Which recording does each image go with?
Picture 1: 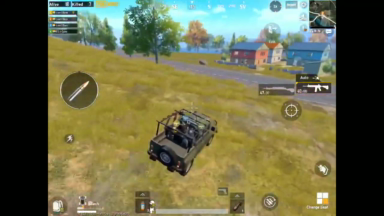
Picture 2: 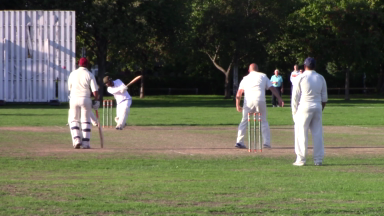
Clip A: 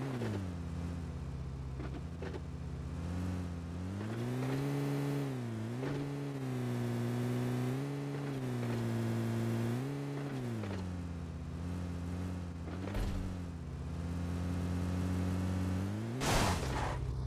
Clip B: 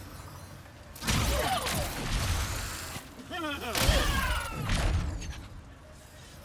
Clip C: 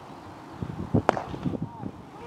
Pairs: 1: A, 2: C